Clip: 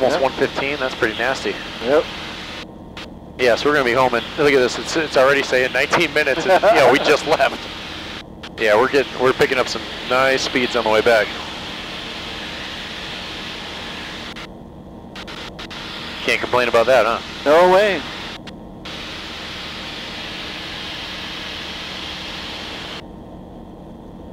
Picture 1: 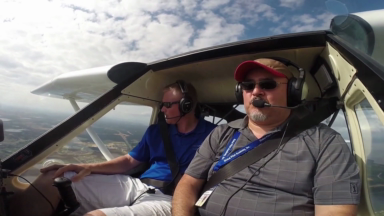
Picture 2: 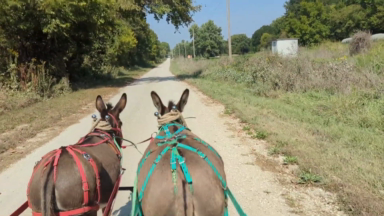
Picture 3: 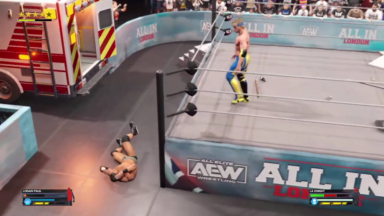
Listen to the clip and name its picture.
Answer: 1